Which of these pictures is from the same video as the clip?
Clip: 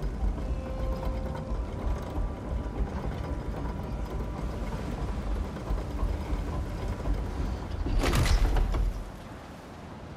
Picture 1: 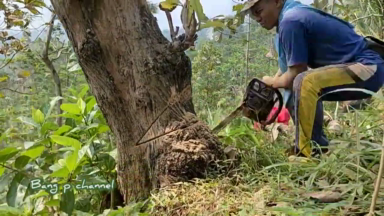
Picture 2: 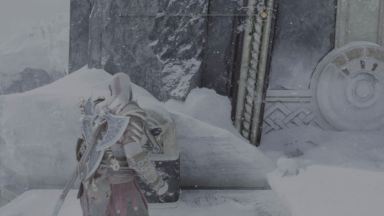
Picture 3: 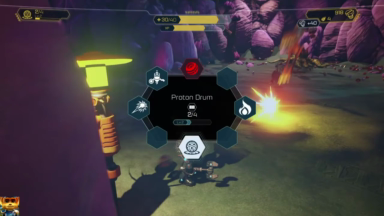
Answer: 2